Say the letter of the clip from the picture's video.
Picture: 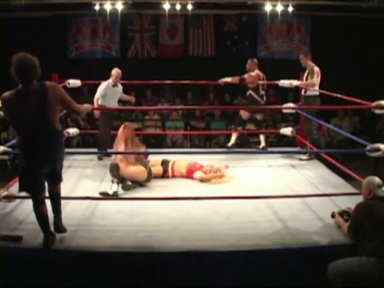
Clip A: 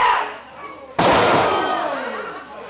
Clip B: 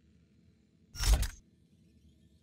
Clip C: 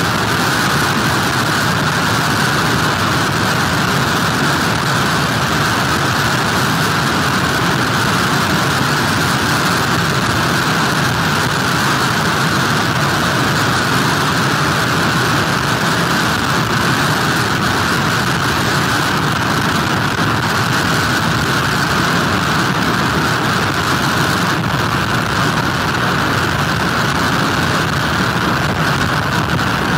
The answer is A